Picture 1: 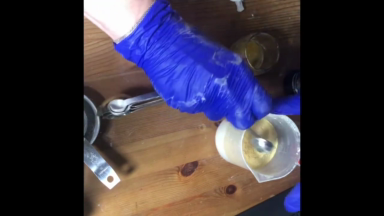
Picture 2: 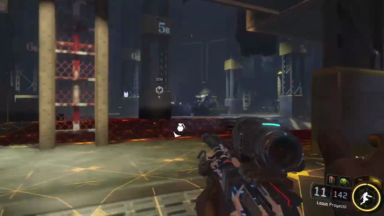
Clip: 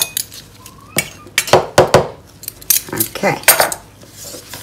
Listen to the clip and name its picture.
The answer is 1